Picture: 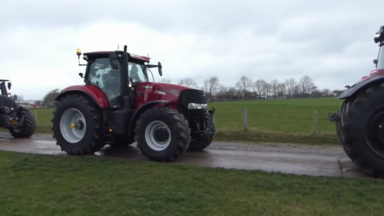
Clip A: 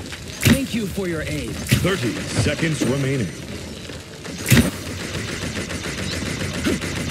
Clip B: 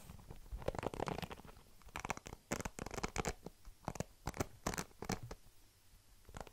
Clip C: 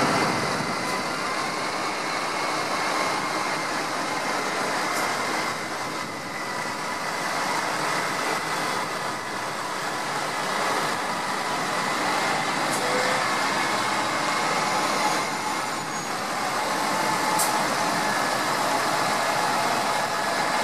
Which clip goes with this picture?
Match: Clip C